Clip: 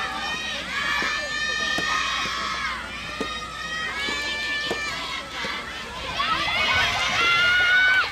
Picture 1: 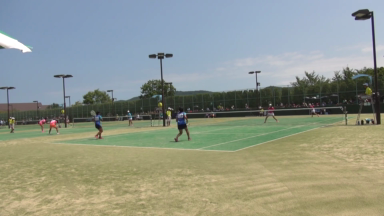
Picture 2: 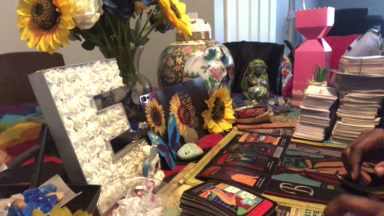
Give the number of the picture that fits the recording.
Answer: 1